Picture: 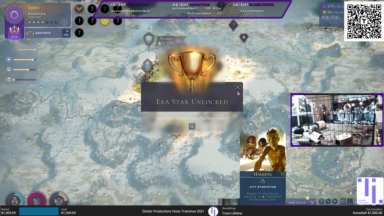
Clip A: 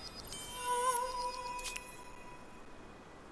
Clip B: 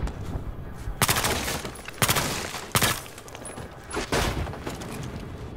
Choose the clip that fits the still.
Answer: A